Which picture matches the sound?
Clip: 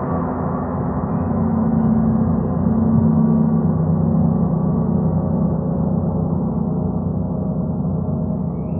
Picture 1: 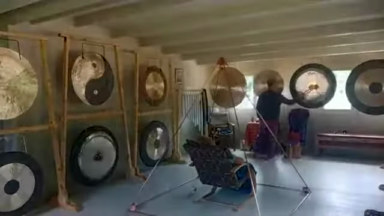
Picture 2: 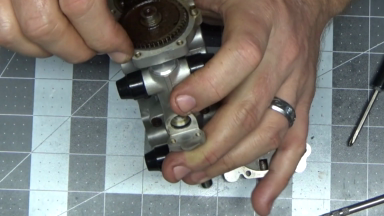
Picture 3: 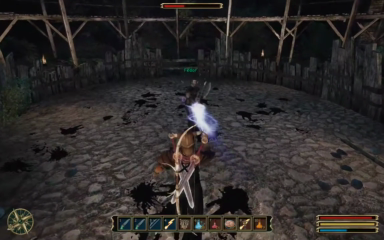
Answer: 1